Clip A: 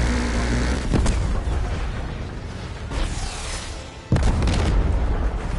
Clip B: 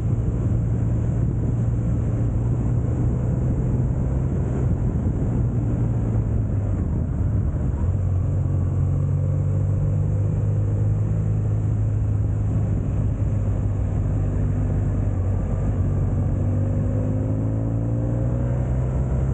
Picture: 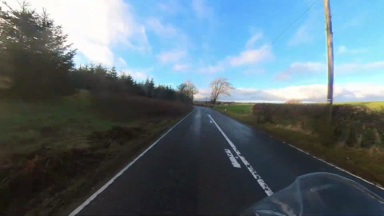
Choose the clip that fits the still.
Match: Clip B